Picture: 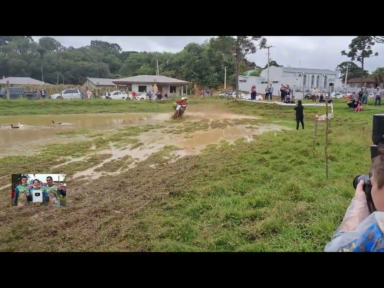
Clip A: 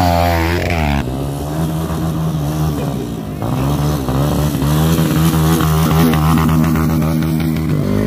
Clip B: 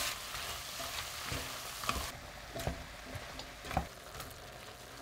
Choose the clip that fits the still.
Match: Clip A